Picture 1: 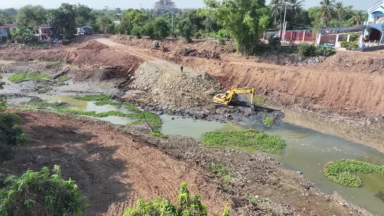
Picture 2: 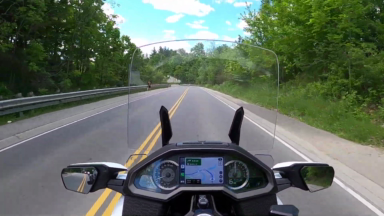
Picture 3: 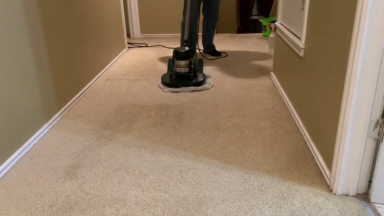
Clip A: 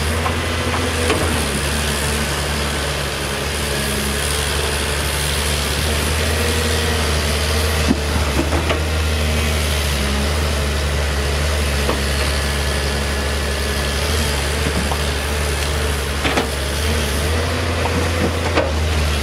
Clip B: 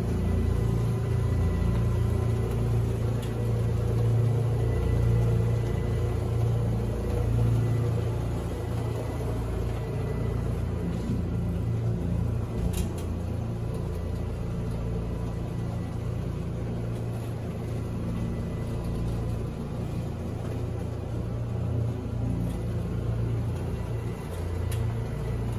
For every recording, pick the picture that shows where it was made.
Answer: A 1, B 3